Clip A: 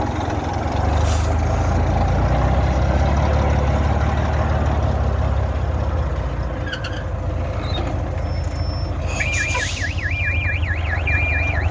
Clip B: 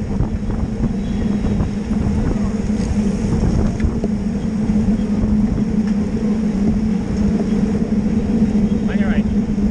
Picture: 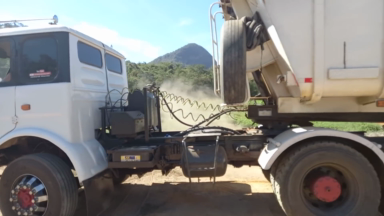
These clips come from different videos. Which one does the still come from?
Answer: A